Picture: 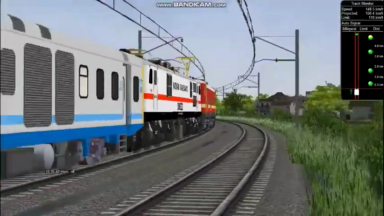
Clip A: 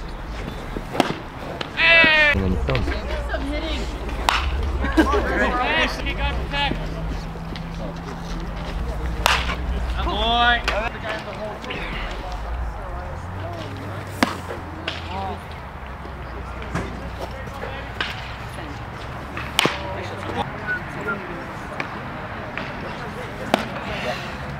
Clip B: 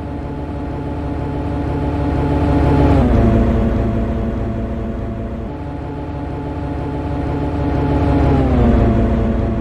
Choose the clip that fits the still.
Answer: B